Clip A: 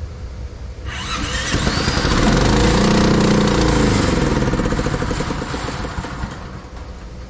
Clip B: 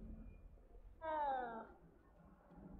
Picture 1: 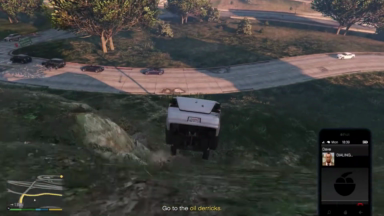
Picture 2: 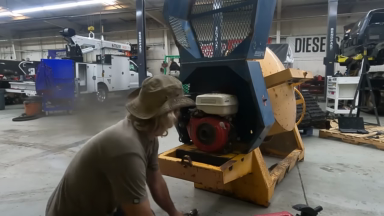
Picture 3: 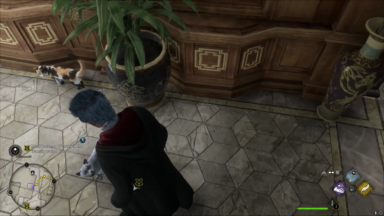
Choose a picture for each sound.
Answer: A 2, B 3